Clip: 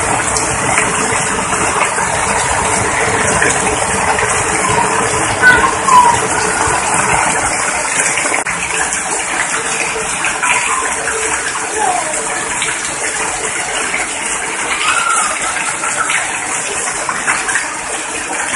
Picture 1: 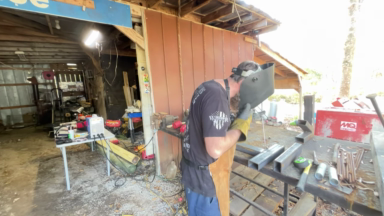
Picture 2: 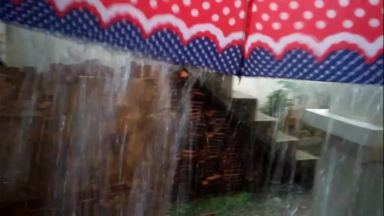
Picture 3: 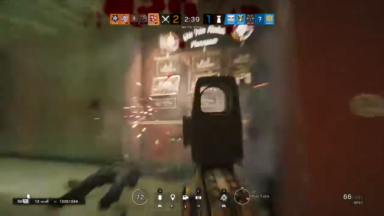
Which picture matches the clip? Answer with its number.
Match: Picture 2